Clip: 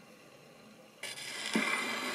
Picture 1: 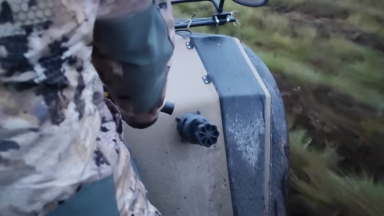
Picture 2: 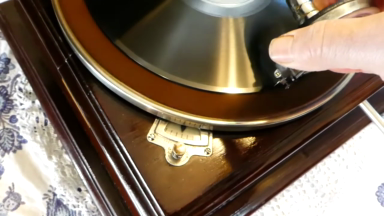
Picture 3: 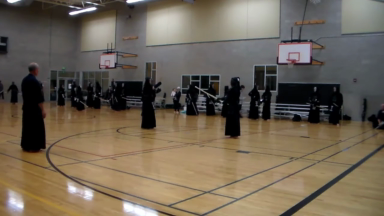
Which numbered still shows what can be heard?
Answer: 2